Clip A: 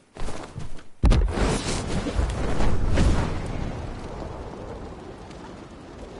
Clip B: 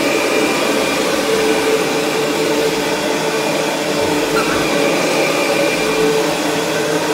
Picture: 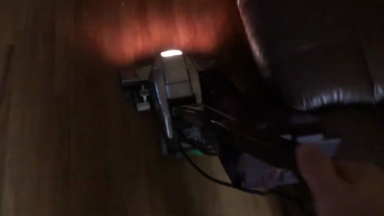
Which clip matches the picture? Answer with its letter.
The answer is B